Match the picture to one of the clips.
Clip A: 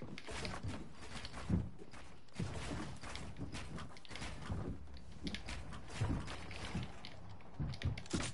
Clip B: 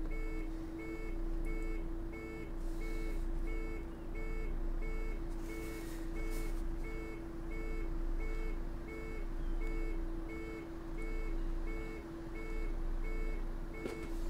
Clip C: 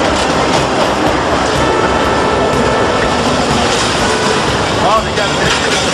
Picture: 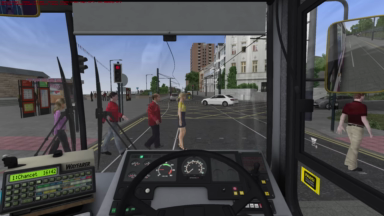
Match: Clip B